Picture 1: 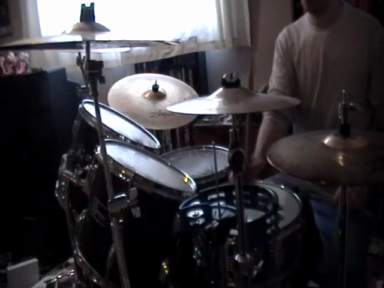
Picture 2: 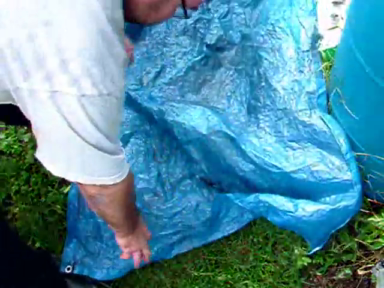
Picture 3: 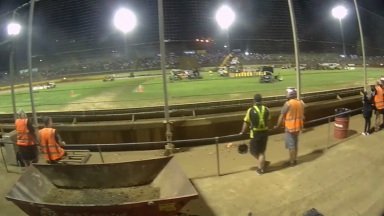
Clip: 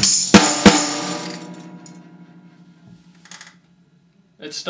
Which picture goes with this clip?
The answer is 1